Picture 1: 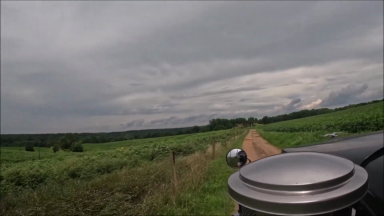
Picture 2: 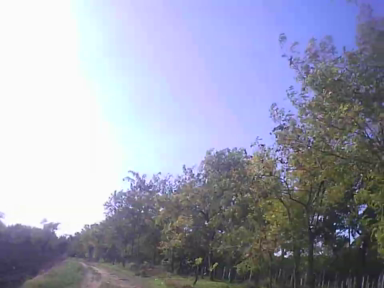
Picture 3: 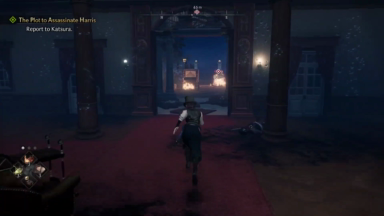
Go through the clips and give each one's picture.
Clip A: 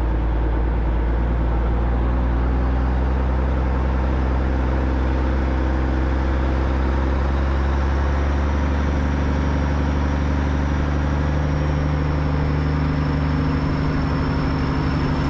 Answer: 1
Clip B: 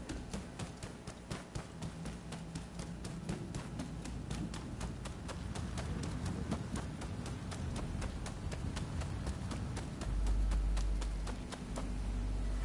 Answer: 3